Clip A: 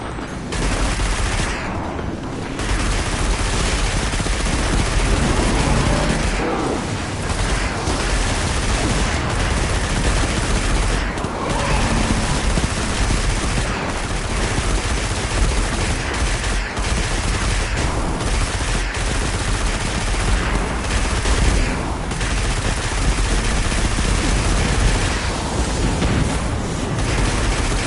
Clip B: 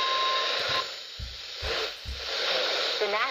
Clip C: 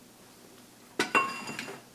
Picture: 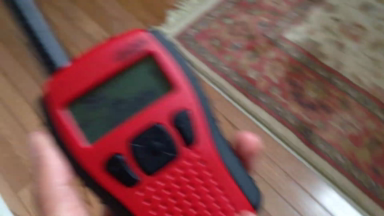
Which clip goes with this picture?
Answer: B